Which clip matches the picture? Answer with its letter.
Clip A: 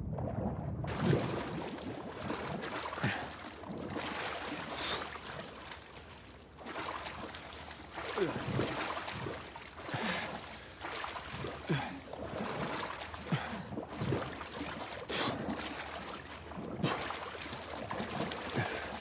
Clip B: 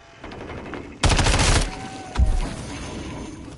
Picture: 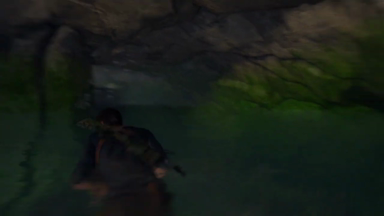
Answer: A